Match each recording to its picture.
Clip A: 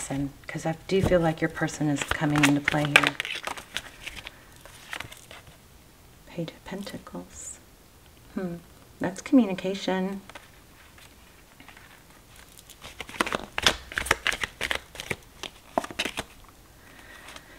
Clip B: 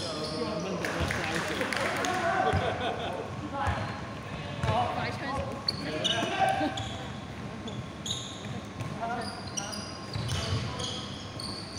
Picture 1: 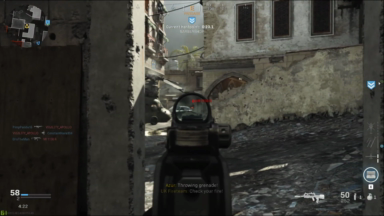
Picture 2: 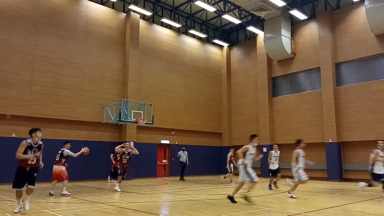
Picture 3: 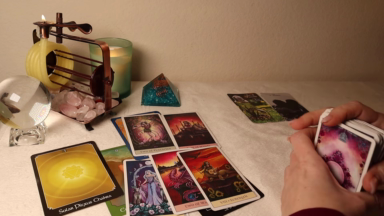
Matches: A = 3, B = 2